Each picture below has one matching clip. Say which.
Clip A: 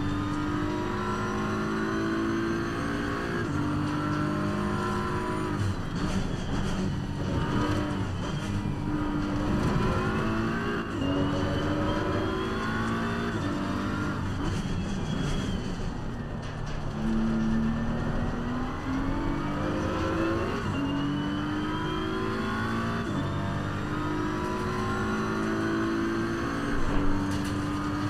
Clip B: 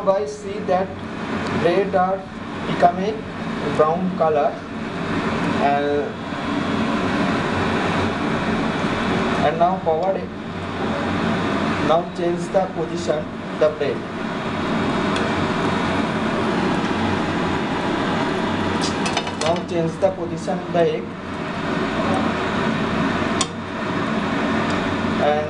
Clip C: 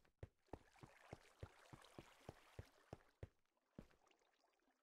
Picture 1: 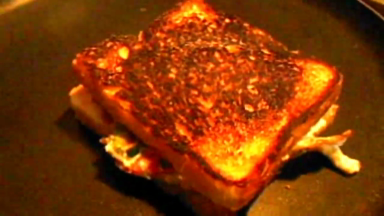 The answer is B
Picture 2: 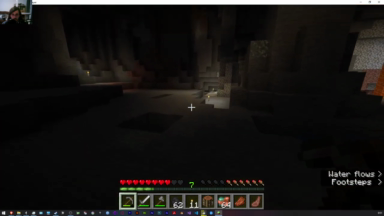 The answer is C